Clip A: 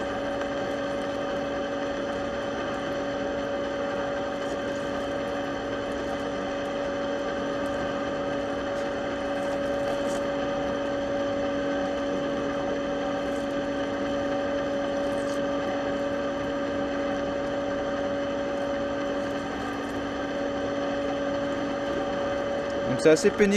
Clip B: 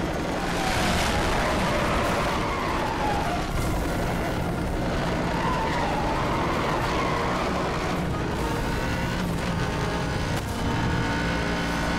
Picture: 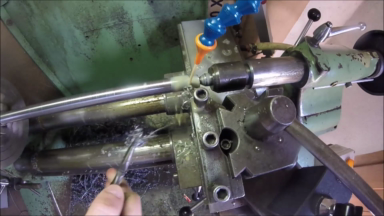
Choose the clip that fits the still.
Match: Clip A